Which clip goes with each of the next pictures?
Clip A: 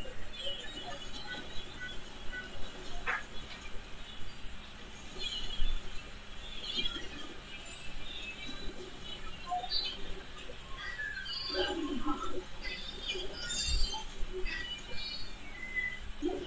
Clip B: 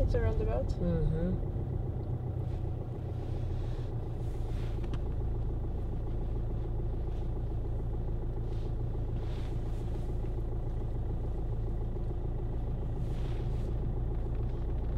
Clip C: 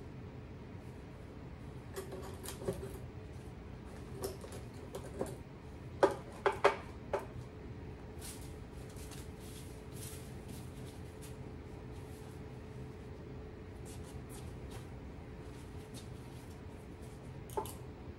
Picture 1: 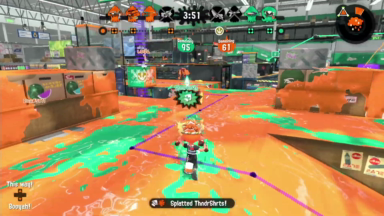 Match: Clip A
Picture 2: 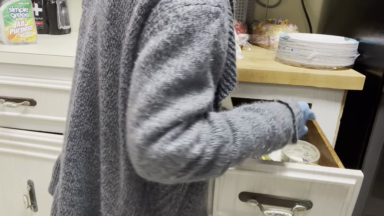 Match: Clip C